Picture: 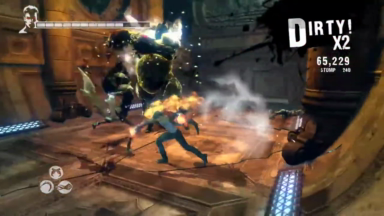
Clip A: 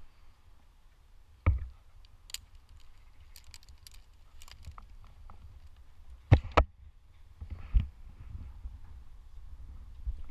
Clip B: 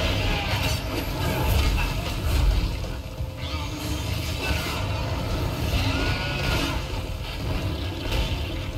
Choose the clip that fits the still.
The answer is B